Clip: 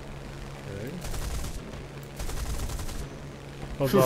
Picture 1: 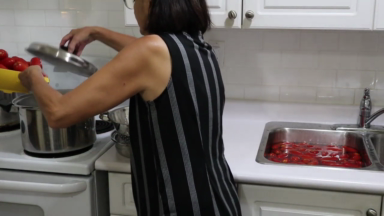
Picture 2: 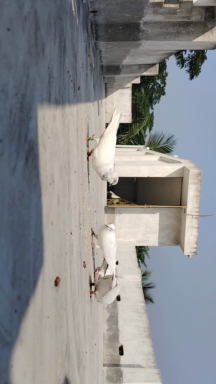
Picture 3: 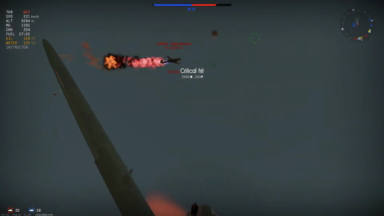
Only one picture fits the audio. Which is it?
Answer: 3